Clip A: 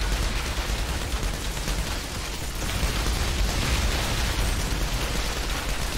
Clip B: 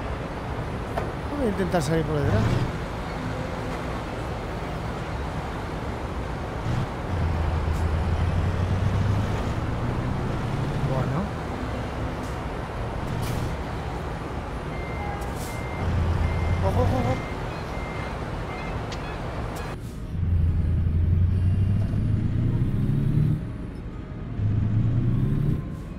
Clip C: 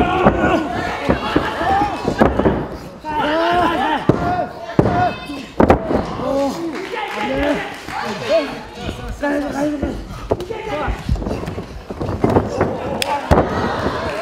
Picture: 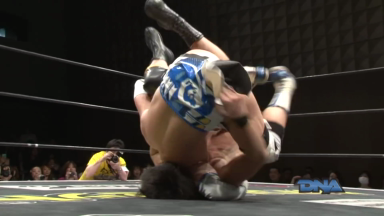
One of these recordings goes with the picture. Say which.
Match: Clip C